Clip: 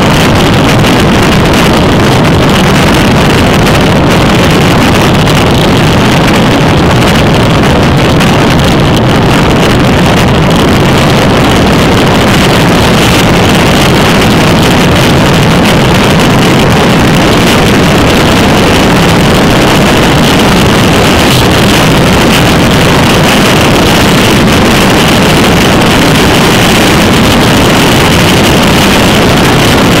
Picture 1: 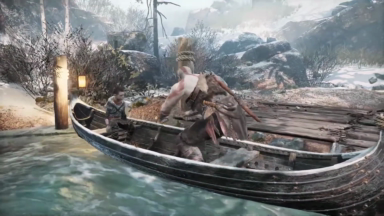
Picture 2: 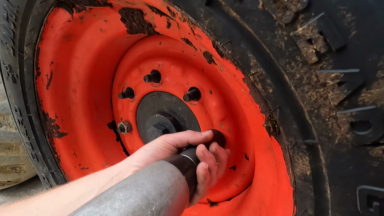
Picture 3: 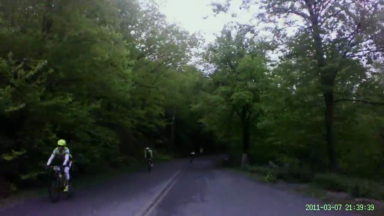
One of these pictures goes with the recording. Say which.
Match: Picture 3